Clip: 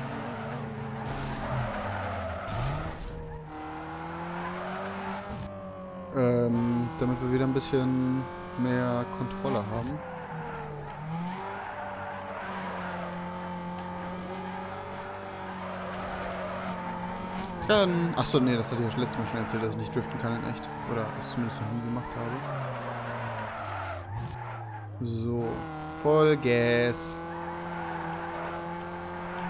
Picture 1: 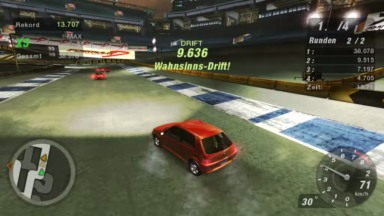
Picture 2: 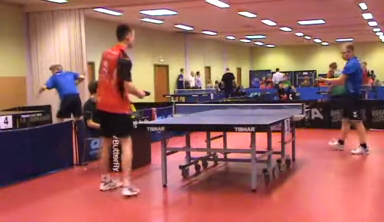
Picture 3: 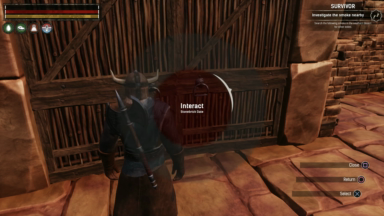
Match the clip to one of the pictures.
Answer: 1